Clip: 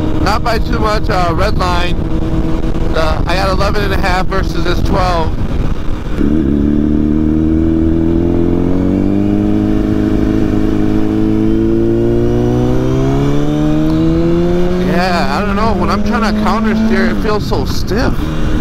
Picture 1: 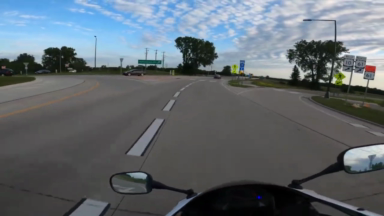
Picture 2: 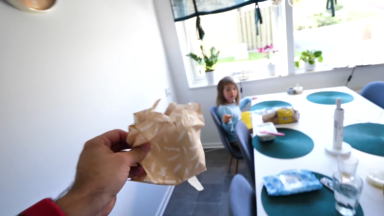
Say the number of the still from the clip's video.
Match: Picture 1